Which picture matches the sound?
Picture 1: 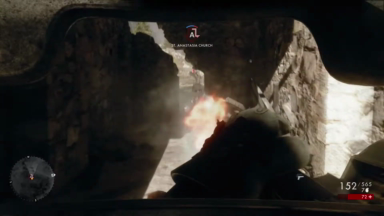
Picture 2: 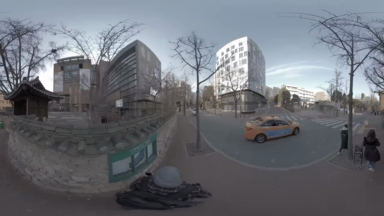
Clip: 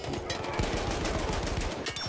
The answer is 1